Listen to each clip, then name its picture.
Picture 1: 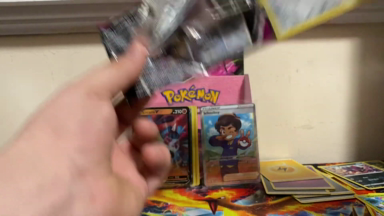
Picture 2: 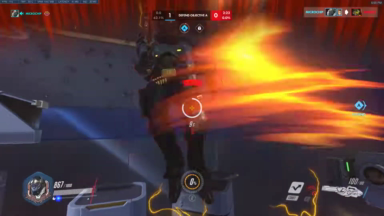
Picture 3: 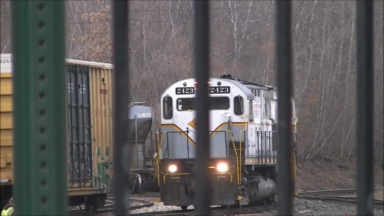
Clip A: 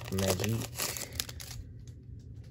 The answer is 1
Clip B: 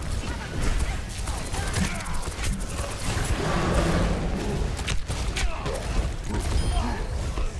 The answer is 2